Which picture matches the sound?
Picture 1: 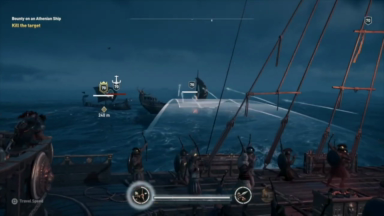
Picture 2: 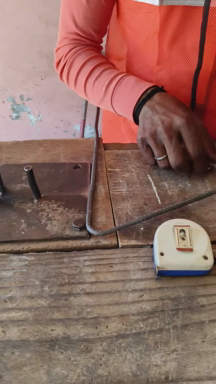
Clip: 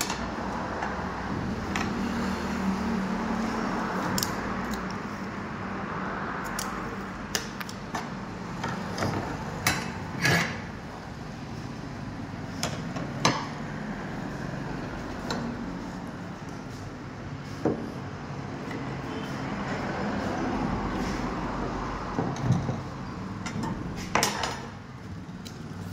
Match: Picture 2